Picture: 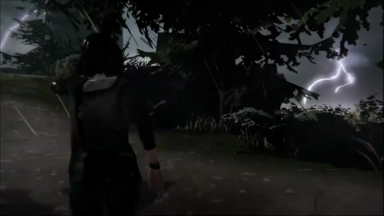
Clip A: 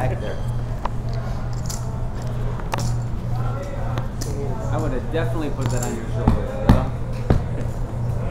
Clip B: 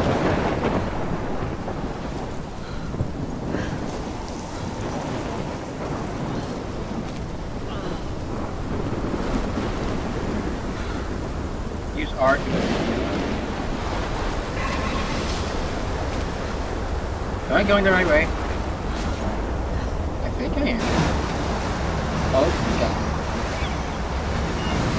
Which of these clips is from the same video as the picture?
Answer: B